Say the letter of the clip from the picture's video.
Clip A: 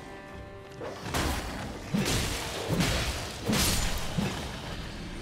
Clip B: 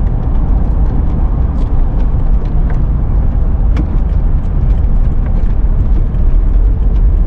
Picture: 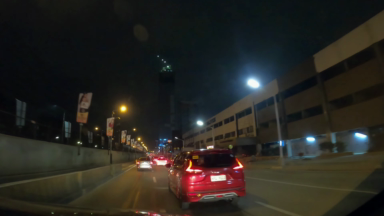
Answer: B